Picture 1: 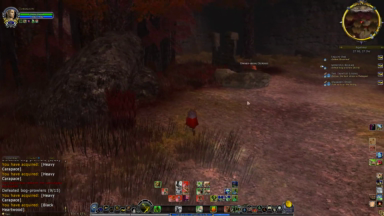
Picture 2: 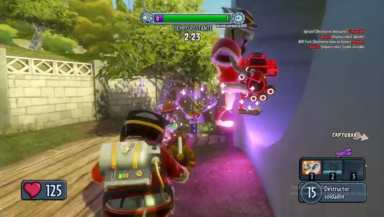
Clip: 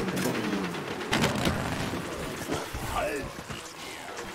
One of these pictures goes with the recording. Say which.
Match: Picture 2